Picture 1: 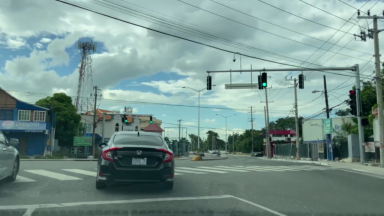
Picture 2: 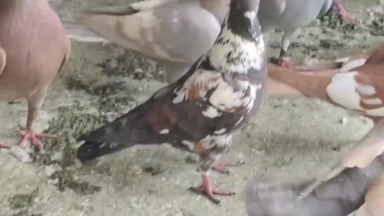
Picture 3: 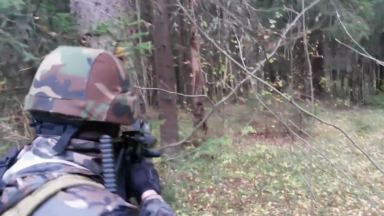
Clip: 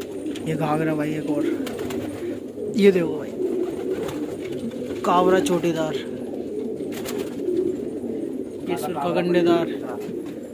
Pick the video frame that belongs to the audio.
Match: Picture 2